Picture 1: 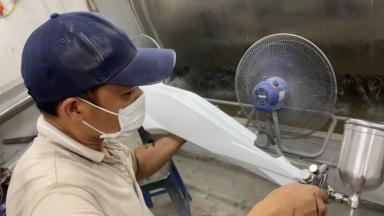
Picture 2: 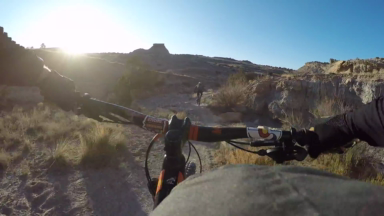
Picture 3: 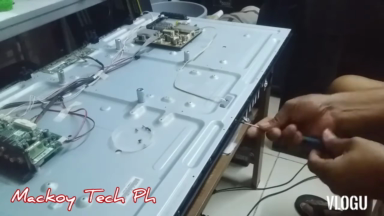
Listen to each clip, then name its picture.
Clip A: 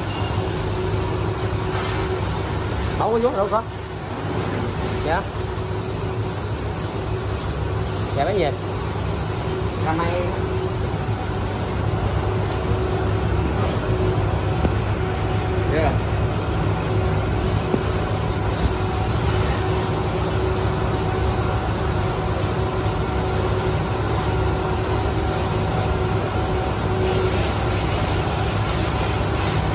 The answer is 1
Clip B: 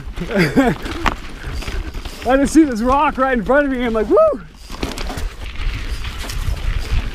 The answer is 2